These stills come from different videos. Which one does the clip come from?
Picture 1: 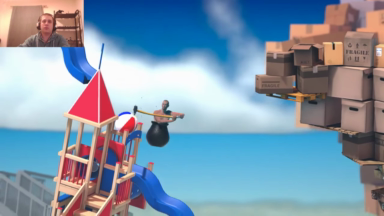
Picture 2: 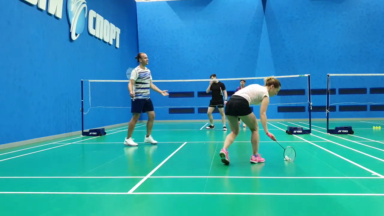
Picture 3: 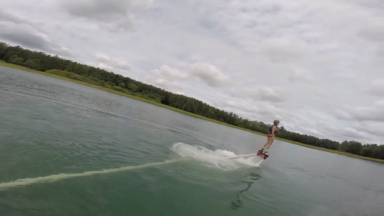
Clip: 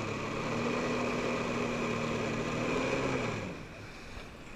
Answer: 3